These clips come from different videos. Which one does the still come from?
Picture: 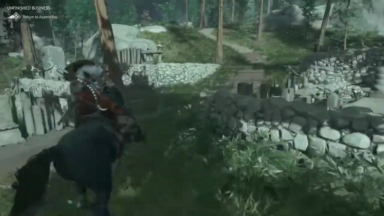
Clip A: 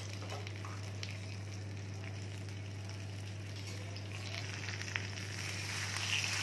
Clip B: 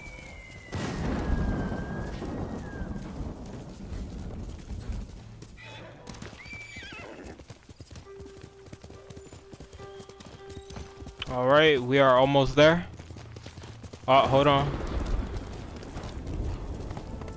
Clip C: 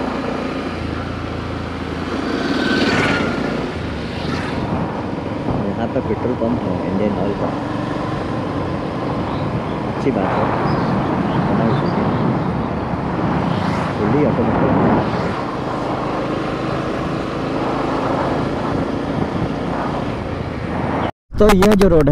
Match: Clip B